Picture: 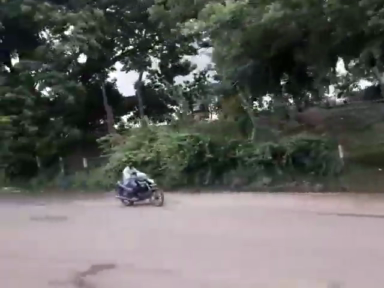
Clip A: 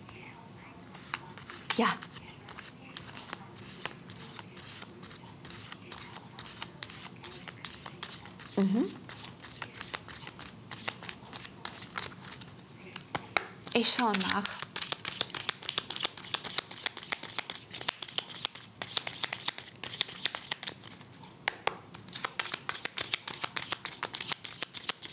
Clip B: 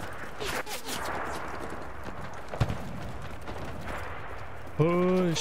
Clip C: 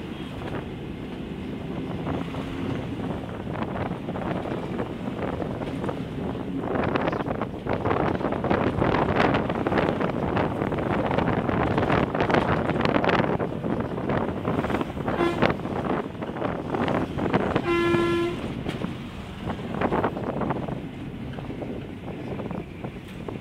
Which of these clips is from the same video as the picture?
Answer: C